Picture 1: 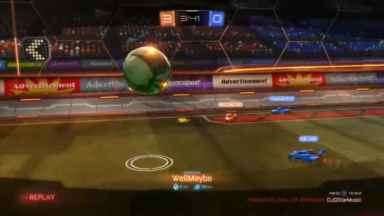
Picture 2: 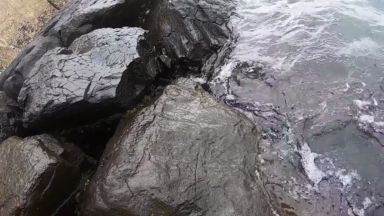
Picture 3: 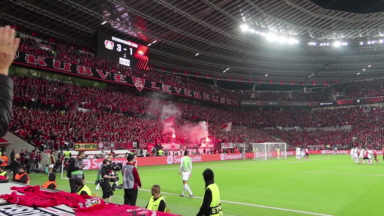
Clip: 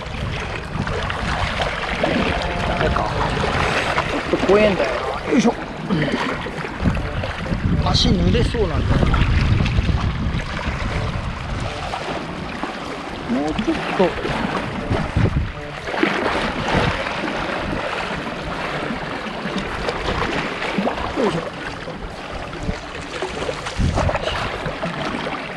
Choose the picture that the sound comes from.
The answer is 2